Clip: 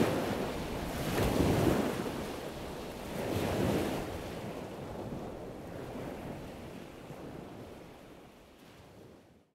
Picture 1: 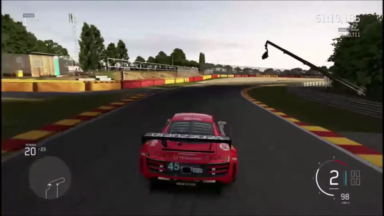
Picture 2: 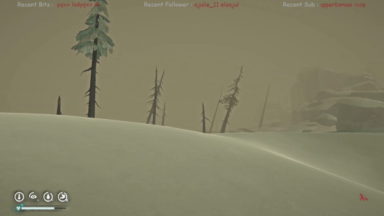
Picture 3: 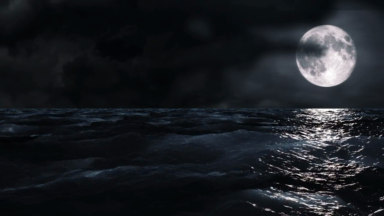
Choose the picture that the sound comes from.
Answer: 3